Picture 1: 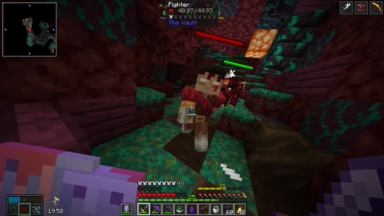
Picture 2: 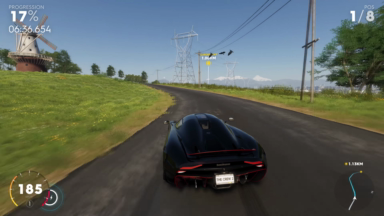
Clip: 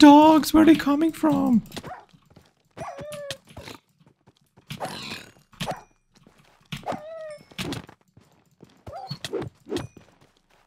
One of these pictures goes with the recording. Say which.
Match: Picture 1